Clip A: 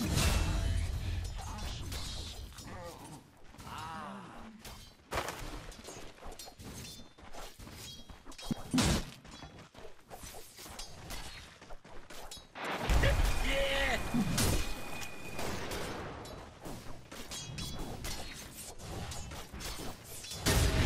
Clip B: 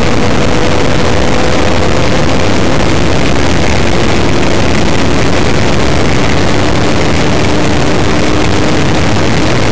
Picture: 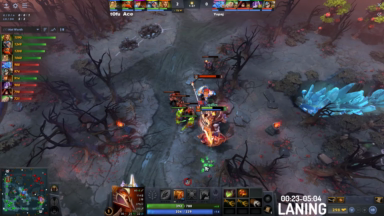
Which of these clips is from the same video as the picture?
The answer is A